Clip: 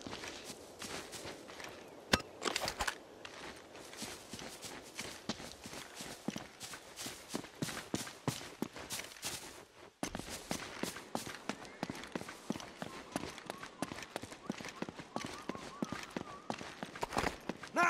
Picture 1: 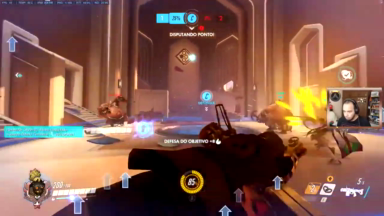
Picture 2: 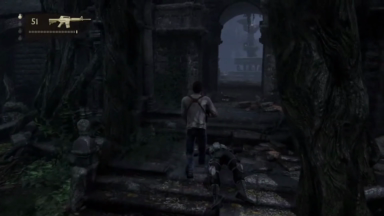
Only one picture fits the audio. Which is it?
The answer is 2